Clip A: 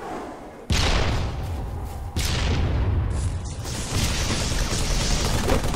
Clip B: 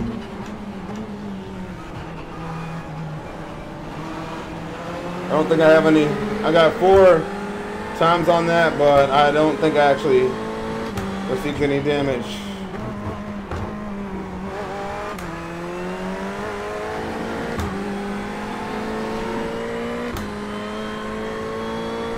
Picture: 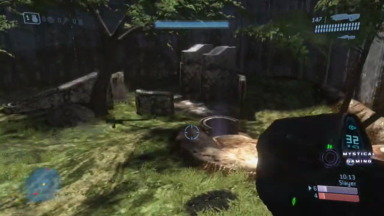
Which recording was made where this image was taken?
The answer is A